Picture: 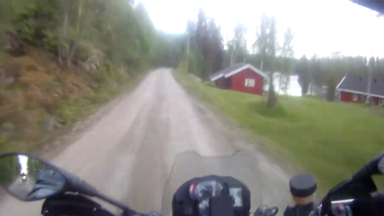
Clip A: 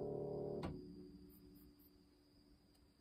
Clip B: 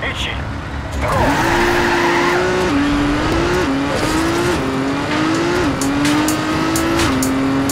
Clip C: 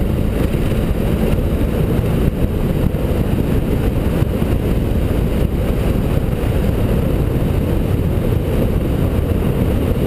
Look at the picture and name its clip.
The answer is C